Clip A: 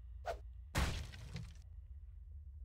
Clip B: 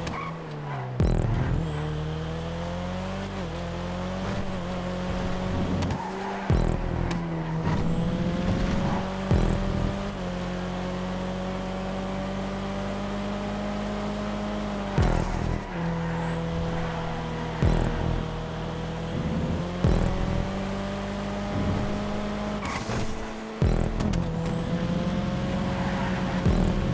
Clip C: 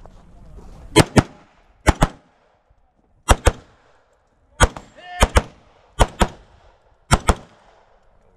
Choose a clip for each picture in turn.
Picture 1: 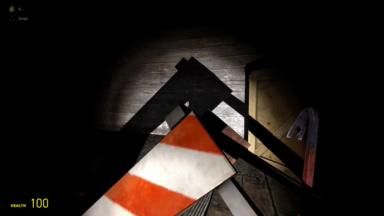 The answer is A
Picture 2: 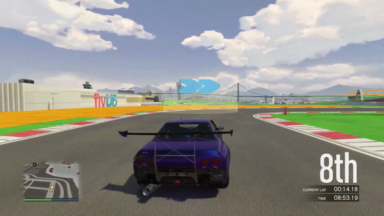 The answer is B